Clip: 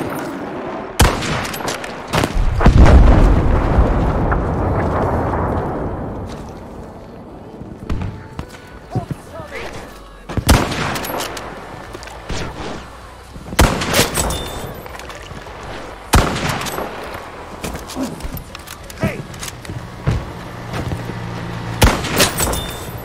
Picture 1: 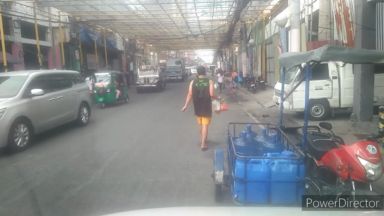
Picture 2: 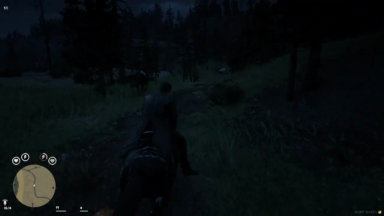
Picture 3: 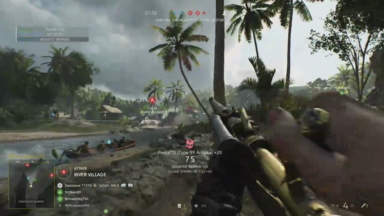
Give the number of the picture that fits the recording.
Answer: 3